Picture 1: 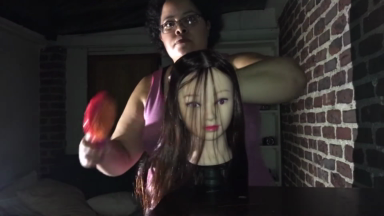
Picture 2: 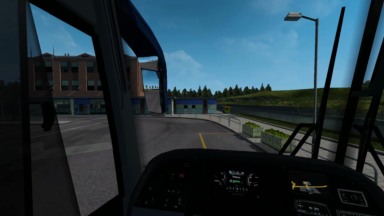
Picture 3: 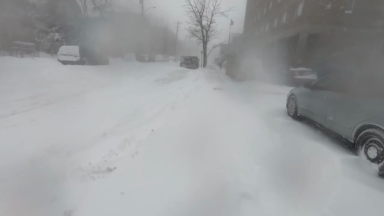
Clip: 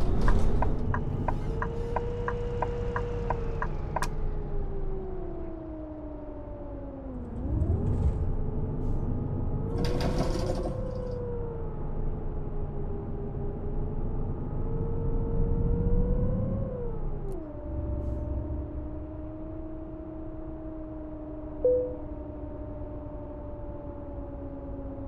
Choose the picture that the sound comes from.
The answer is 2